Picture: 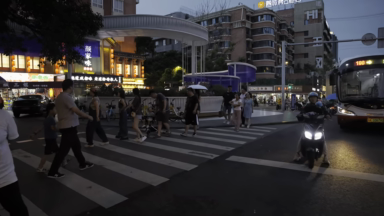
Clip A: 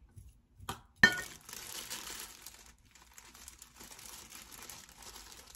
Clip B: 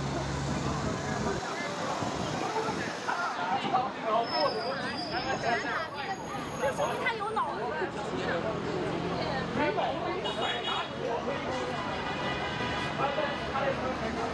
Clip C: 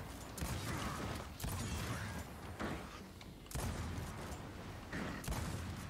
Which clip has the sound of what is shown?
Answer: B